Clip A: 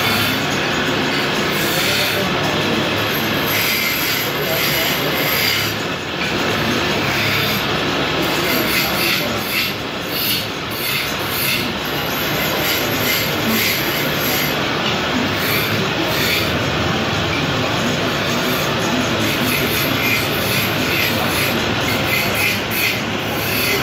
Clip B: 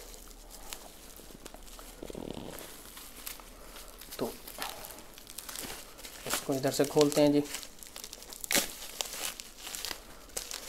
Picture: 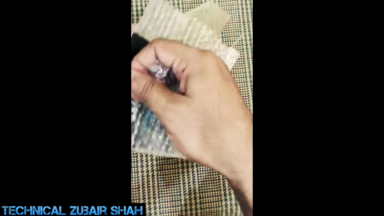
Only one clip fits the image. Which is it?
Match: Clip B